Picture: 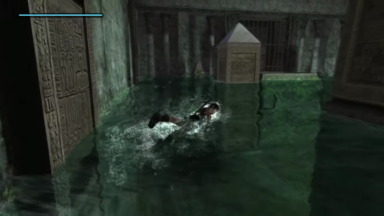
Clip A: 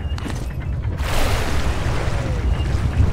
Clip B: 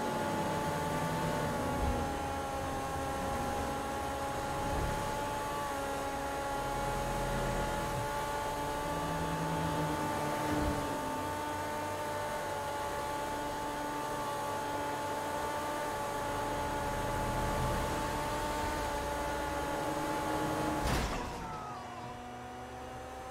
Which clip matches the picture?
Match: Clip A